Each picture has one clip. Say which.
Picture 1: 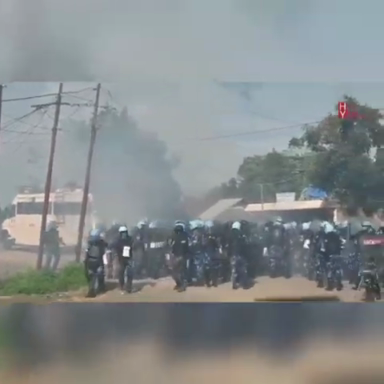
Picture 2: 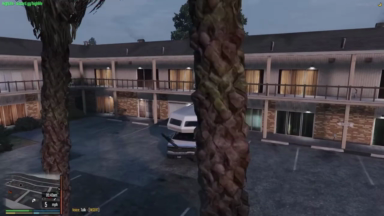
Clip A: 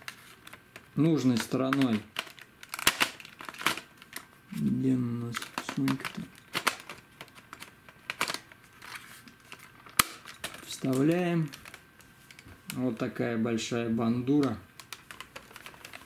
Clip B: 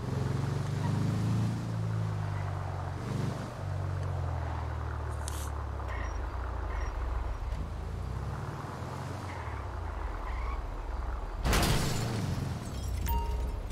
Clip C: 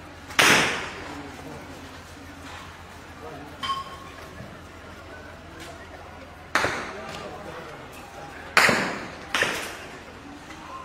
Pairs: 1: C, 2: B